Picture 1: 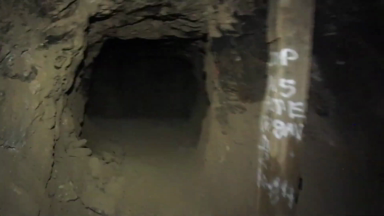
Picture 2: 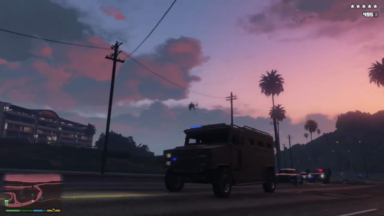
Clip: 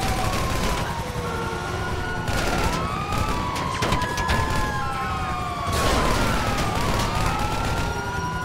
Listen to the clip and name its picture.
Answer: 2